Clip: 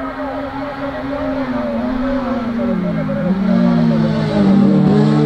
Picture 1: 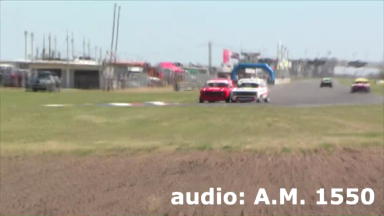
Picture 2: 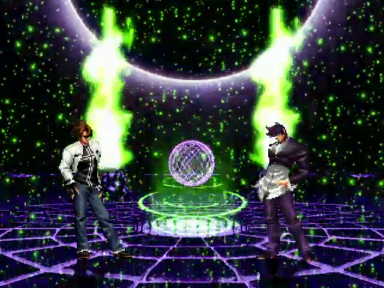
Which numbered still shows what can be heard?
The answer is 1